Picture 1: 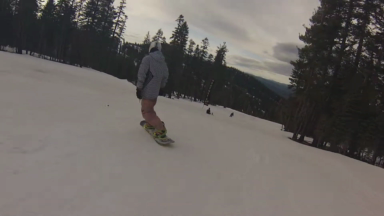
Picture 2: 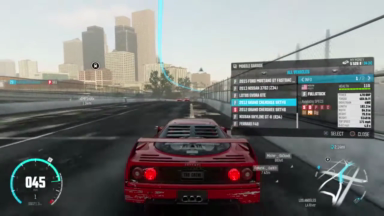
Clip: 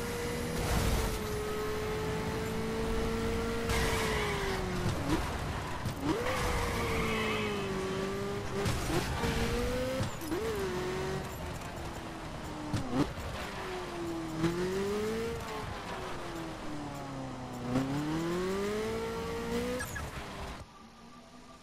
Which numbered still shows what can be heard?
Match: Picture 2